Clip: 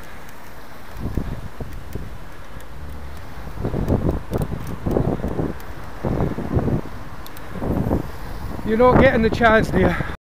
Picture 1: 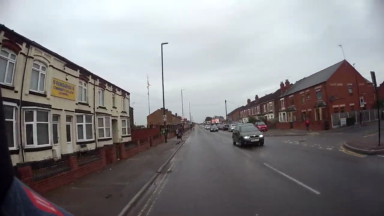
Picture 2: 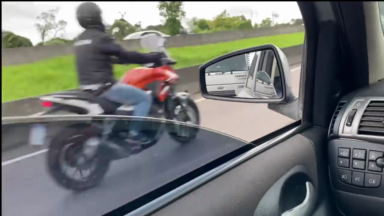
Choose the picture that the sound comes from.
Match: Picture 1